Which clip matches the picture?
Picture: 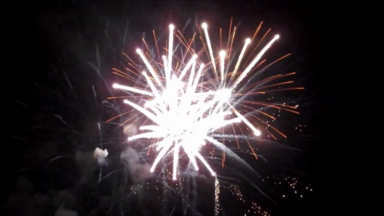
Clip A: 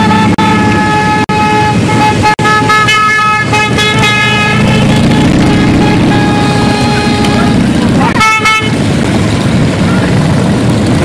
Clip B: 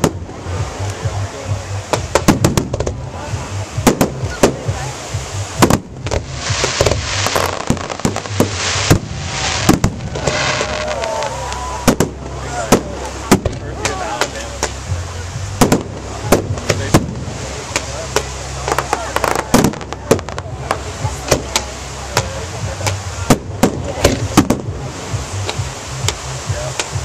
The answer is B